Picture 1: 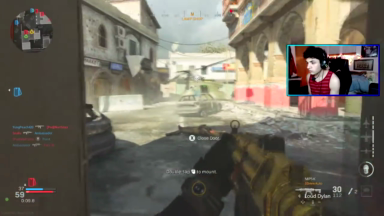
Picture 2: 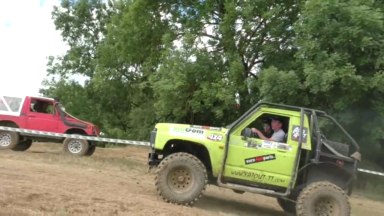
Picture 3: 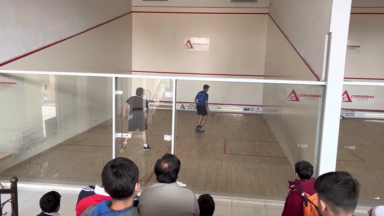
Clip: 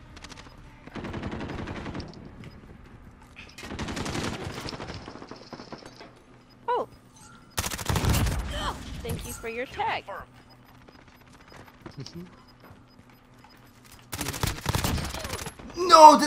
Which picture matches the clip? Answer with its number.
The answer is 1